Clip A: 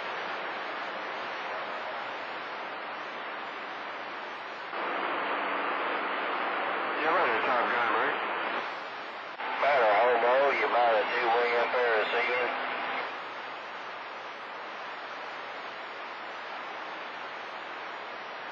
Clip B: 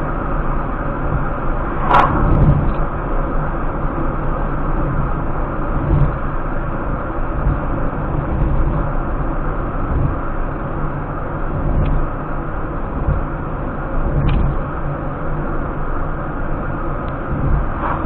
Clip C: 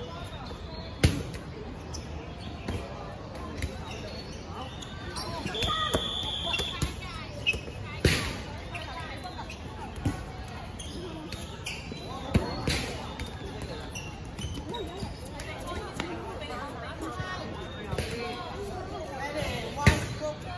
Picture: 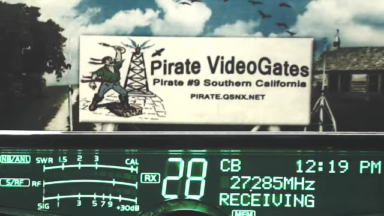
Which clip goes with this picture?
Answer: A